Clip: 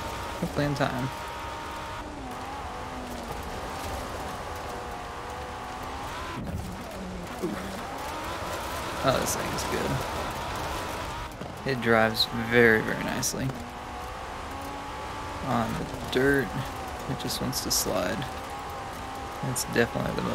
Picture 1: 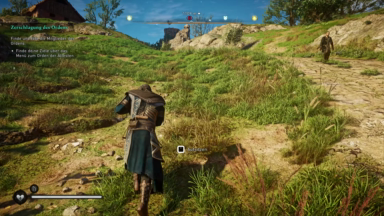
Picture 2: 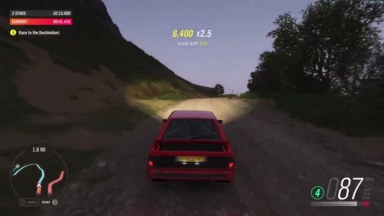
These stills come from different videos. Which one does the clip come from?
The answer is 2